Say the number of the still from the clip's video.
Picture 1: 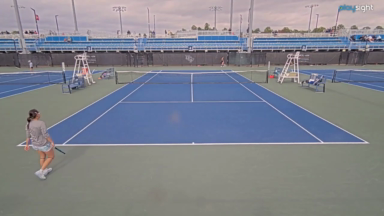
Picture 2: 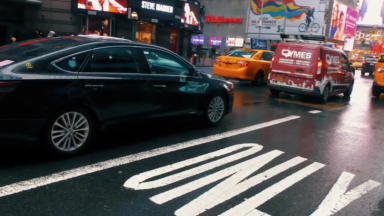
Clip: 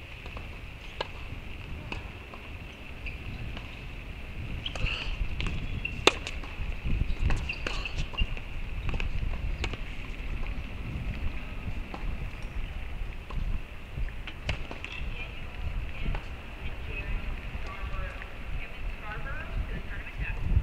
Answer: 1